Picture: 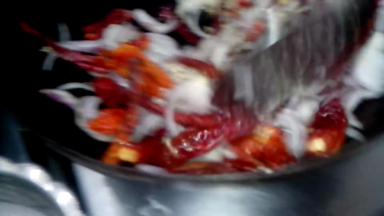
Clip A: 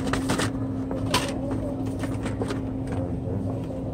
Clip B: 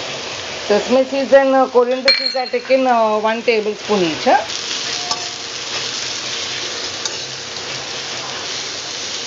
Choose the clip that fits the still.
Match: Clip B